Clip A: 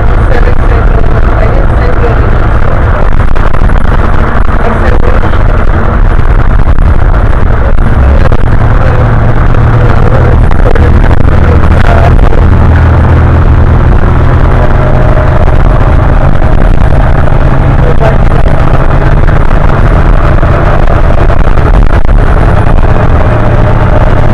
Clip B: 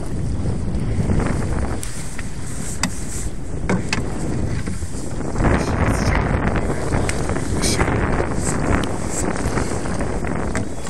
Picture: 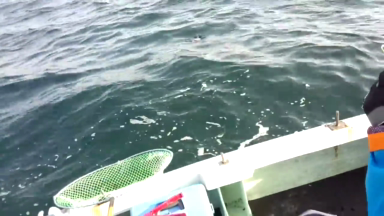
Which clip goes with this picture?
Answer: B